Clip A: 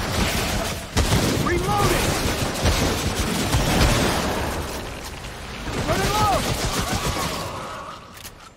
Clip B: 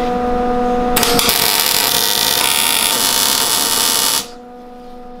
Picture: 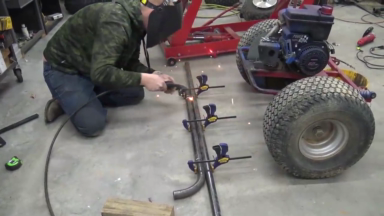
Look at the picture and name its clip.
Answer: B